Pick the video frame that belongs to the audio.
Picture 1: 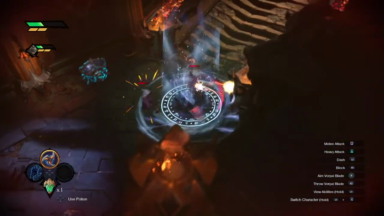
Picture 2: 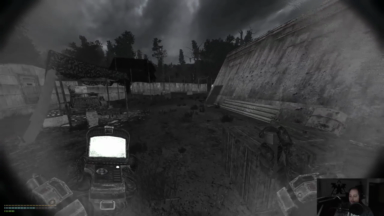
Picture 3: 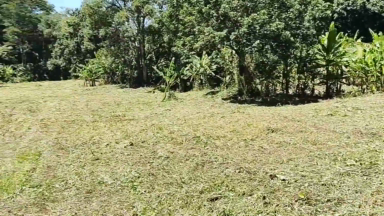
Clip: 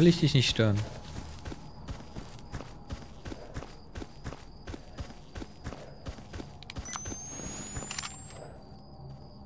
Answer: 2